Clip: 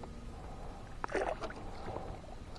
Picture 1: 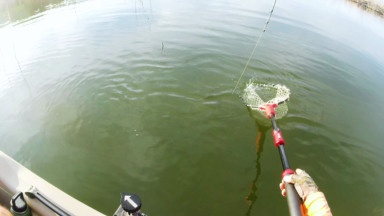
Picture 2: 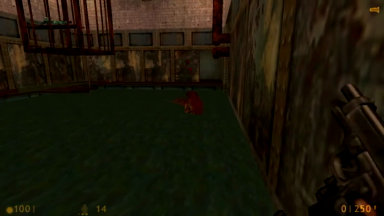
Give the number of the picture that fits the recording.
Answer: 1